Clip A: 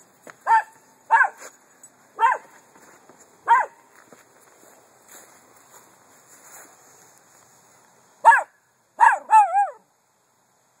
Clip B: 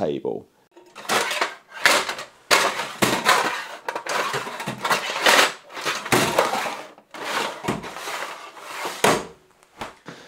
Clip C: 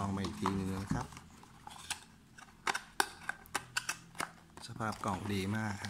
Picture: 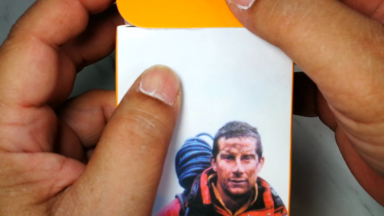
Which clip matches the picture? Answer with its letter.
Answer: C